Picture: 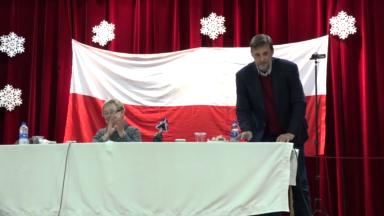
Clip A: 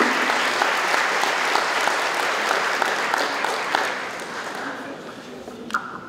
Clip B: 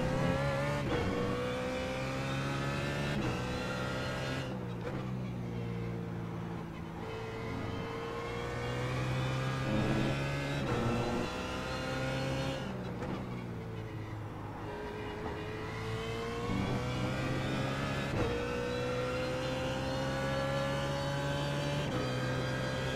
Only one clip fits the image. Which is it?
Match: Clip A